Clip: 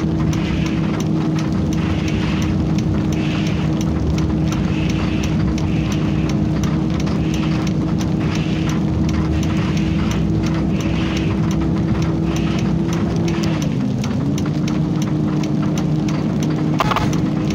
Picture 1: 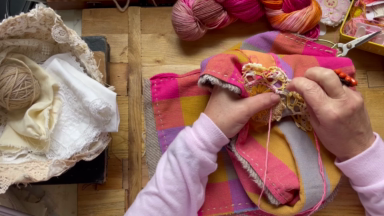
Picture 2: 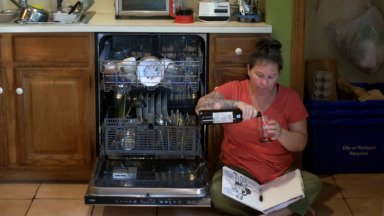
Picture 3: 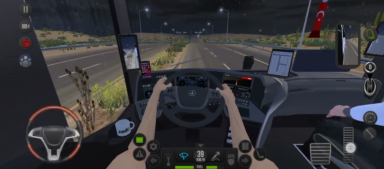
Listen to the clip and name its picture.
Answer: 3